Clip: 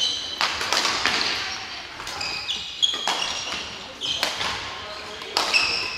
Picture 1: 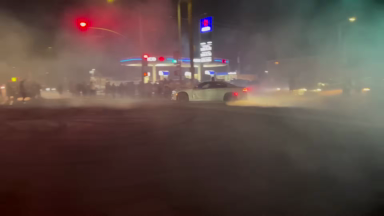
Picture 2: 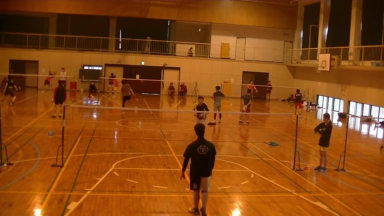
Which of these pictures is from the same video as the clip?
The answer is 2